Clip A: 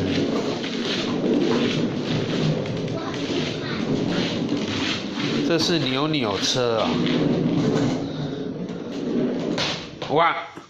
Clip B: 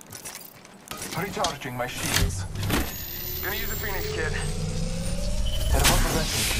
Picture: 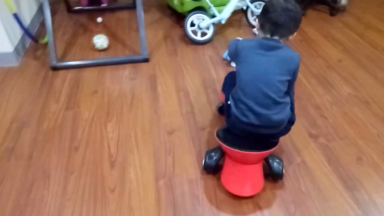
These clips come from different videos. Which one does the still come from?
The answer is A